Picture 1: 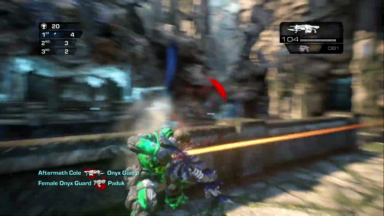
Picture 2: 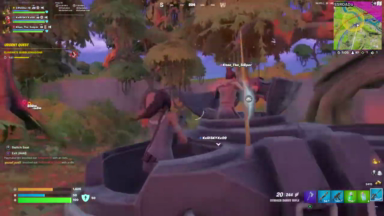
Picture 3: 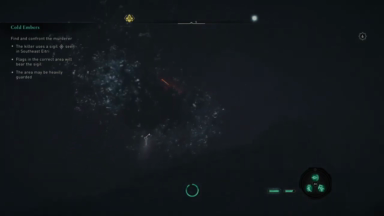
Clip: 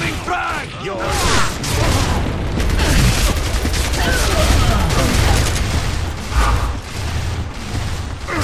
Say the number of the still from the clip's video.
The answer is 1